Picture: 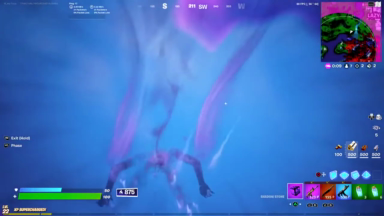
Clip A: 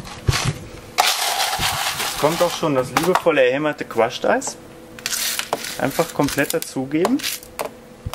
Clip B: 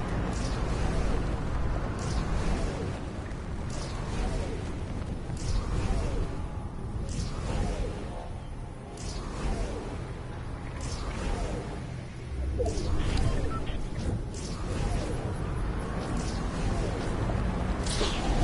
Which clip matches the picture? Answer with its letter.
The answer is B